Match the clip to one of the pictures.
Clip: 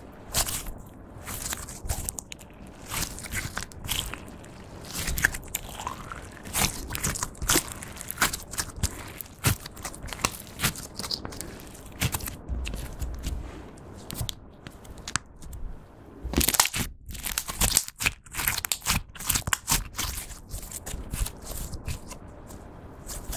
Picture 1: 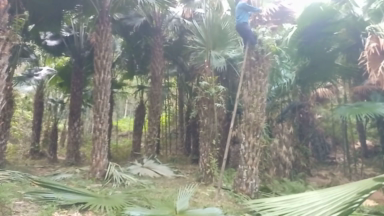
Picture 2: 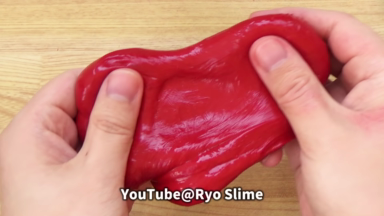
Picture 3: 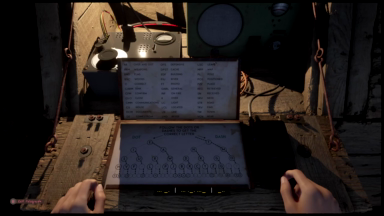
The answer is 2